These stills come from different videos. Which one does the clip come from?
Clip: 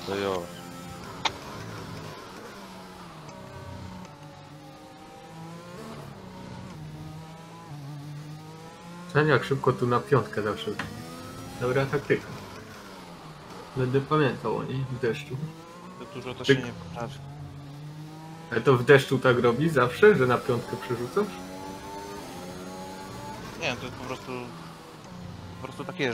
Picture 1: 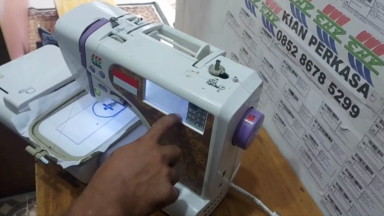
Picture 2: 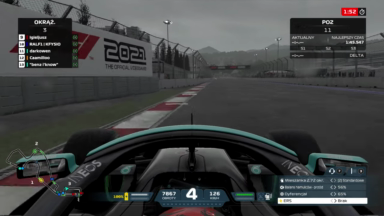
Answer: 2